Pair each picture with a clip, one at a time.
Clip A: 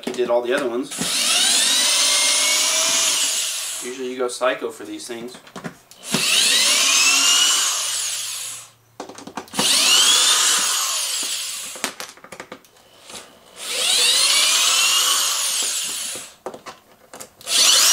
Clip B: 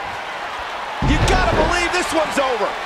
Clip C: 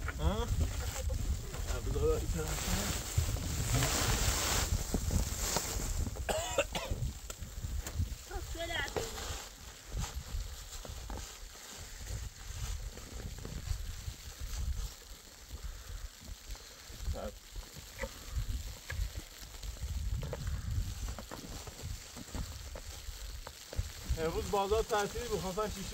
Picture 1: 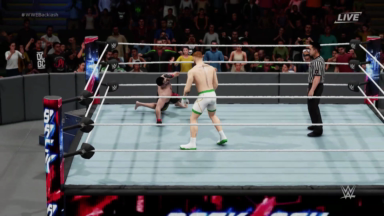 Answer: B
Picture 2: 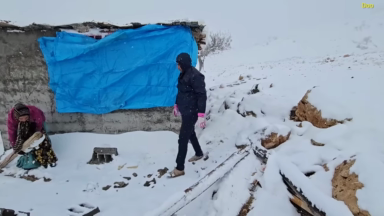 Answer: C